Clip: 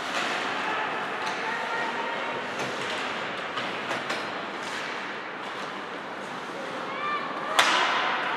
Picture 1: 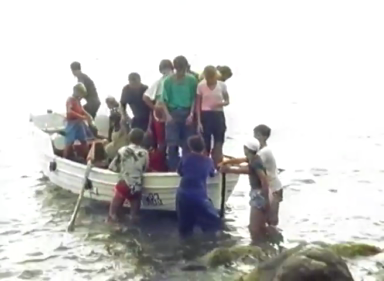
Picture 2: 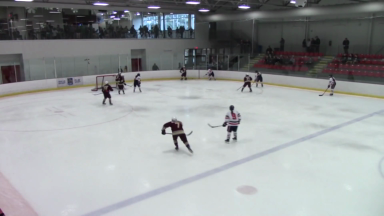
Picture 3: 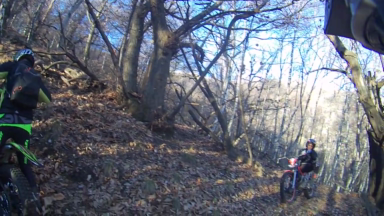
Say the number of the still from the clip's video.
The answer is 2